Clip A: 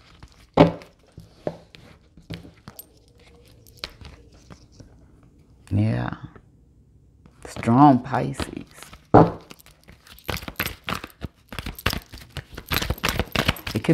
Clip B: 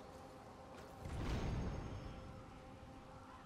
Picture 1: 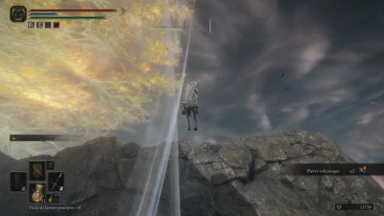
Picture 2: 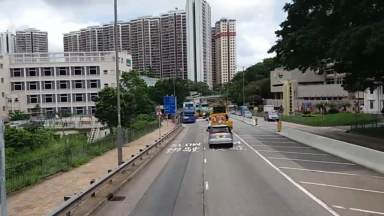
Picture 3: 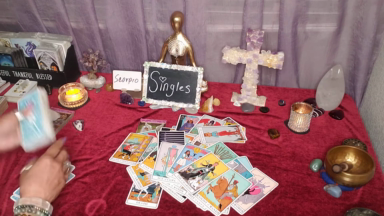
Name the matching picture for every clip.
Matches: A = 3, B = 1